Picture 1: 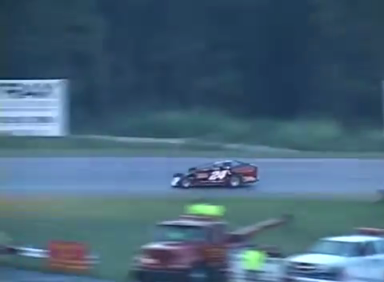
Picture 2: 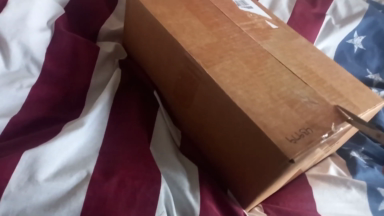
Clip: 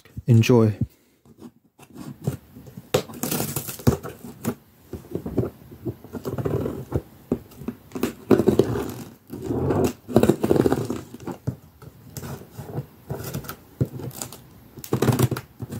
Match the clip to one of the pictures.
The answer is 2